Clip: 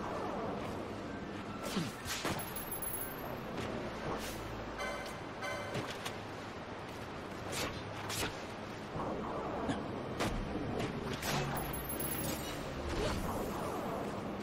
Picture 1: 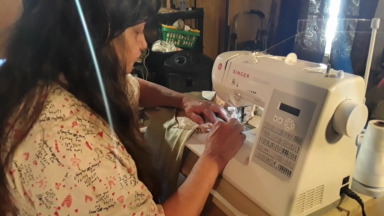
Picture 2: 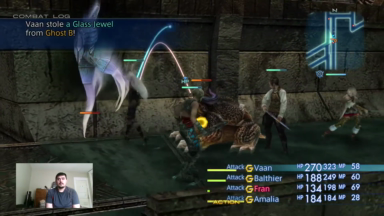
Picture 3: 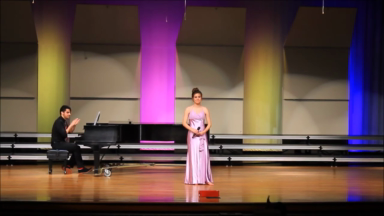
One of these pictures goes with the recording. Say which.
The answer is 2